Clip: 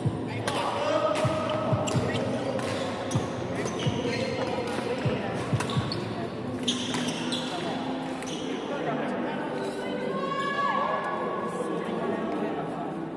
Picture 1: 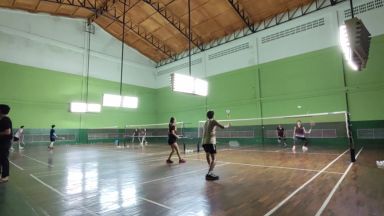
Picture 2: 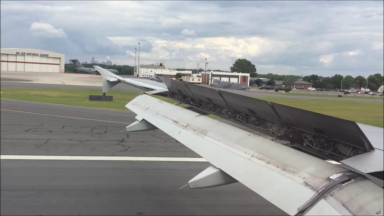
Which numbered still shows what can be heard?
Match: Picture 1